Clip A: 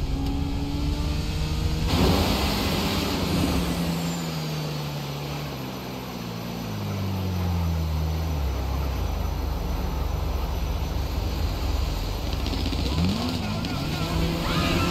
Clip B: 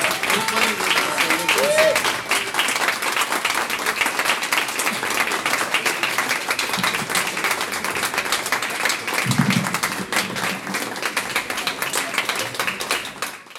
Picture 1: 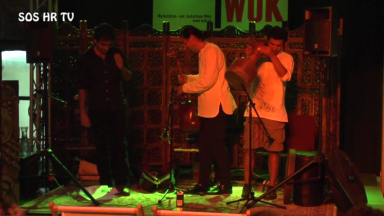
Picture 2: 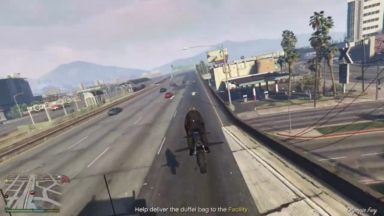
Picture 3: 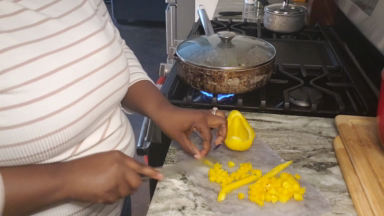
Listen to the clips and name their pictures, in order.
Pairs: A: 2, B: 1